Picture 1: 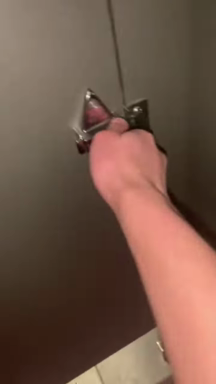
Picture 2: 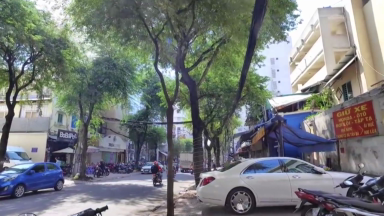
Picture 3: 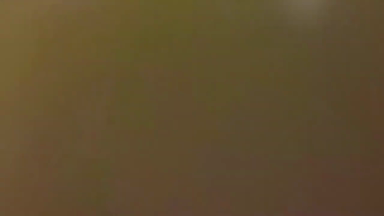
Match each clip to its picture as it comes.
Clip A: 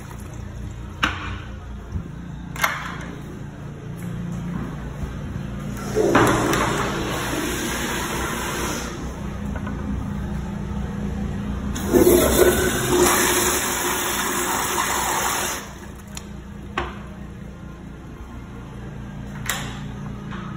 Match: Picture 1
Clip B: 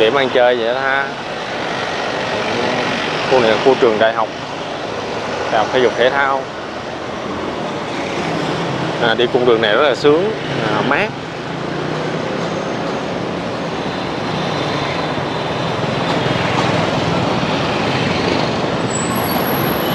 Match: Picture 2